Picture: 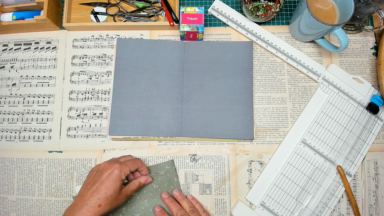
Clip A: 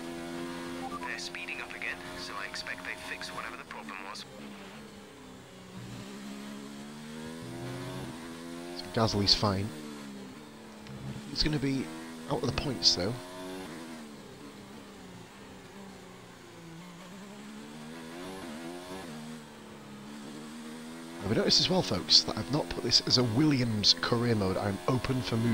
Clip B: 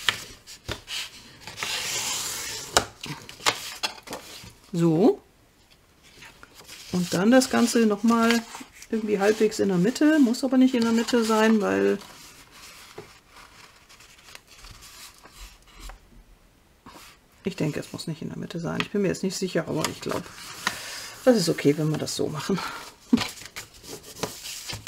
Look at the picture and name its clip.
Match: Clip B